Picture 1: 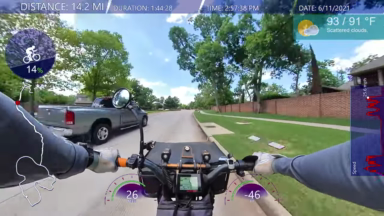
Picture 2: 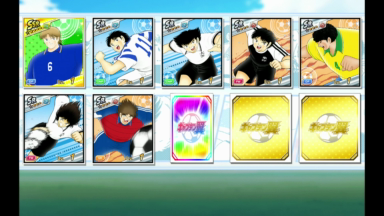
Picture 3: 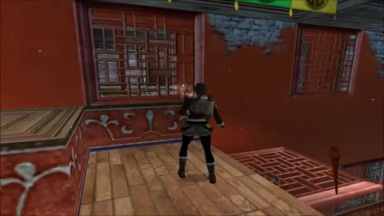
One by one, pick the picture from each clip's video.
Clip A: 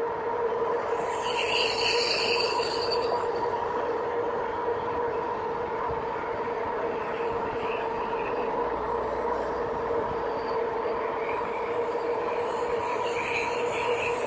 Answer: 1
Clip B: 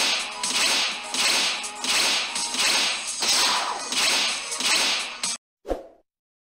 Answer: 2